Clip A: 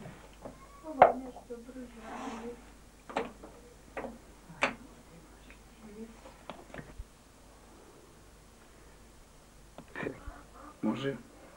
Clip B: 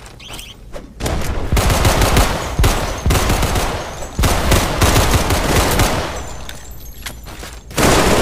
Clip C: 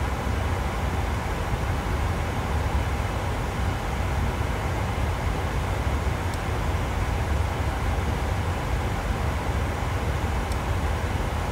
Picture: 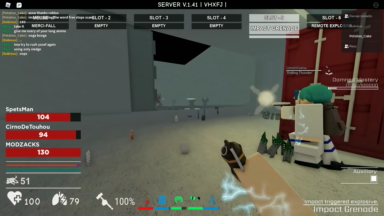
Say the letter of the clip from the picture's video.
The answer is B